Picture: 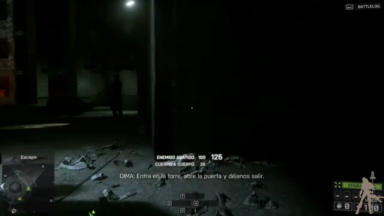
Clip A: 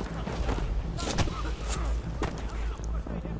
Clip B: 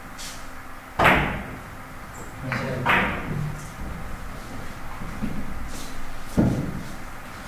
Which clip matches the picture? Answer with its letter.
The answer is A